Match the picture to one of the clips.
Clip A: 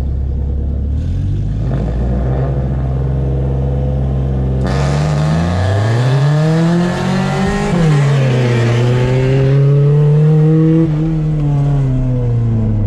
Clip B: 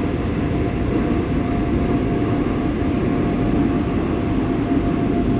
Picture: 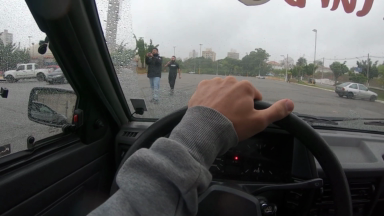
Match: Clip A